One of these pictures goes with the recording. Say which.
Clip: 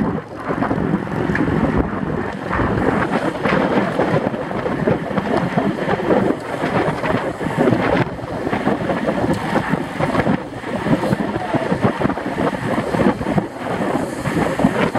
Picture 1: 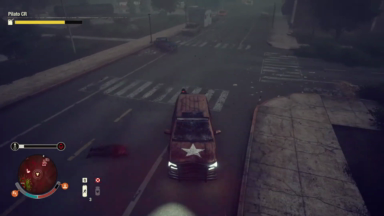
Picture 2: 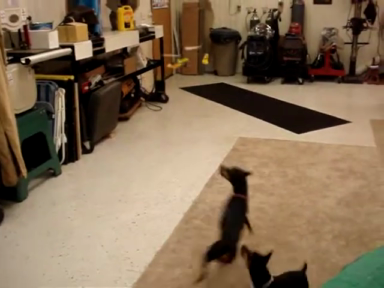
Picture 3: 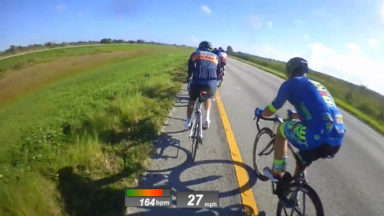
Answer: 3